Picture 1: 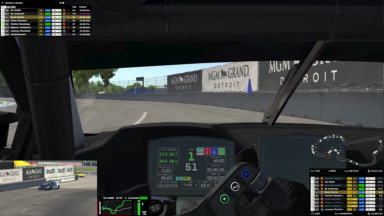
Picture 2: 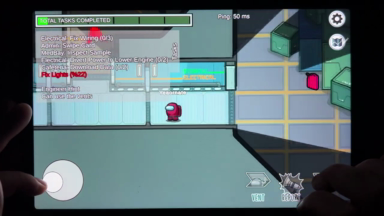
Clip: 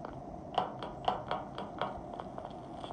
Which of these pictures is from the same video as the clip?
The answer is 2